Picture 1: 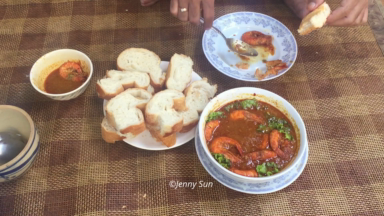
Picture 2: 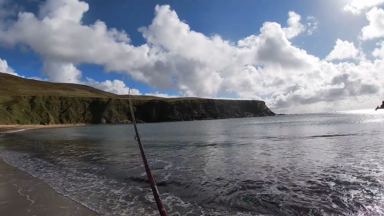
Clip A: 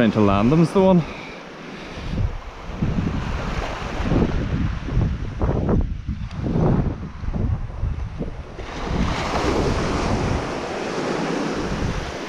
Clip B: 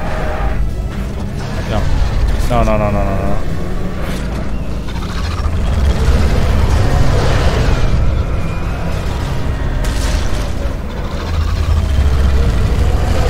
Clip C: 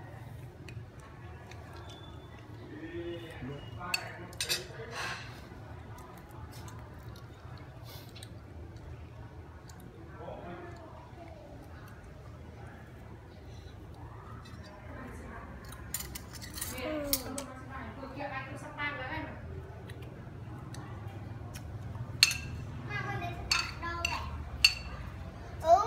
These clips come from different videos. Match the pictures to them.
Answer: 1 C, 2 A